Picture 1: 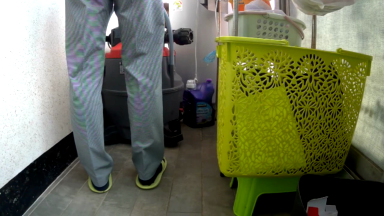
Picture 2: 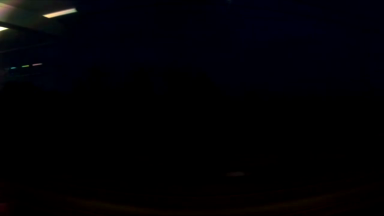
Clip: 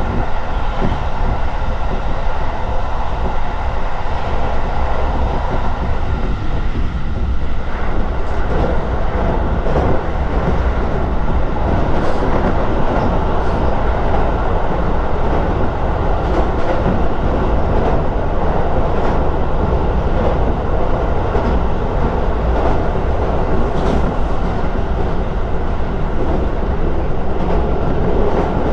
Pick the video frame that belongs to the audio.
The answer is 2